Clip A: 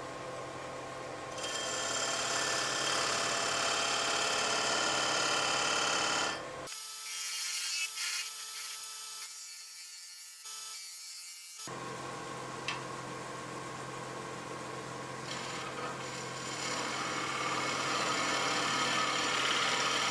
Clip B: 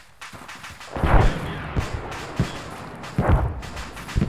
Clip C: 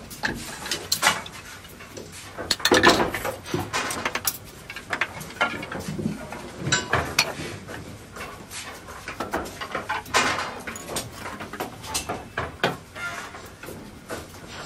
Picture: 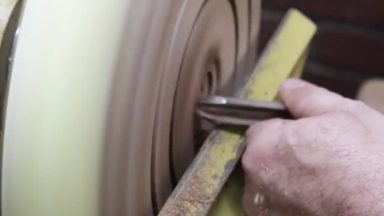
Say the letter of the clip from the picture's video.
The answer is A